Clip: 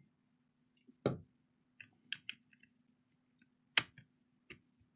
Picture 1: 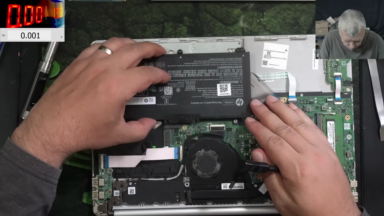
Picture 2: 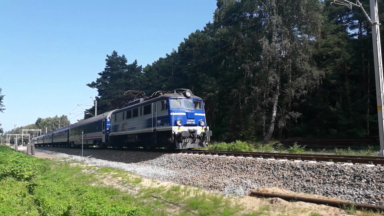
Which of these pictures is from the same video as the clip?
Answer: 1